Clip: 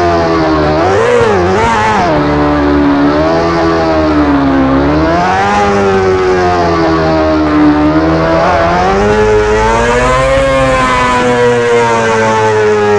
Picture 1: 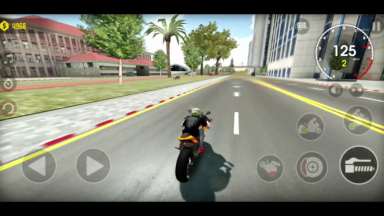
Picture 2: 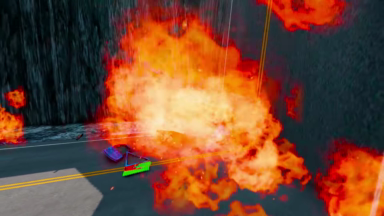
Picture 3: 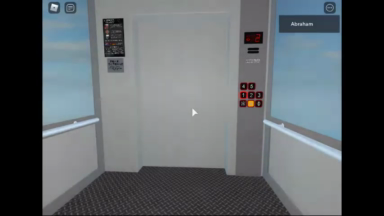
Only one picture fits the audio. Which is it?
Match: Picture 1